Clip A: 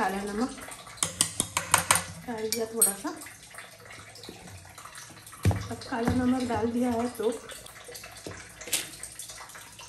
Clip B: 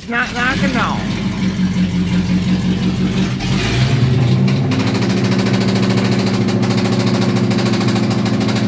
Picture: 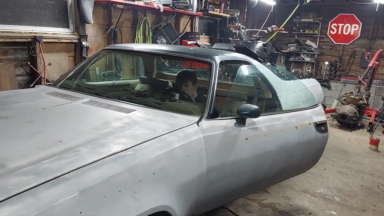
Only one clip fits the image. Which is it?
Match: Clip B